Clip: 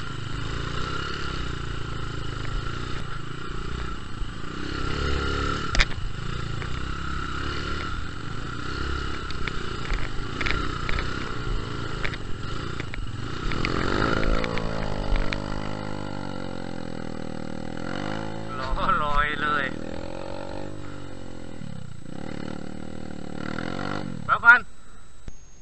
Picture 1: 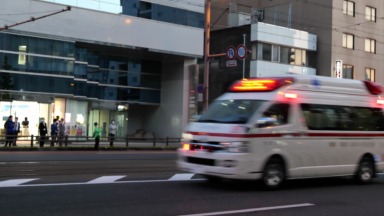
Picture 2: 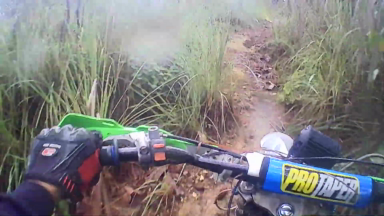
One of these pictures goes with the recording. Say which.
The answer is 2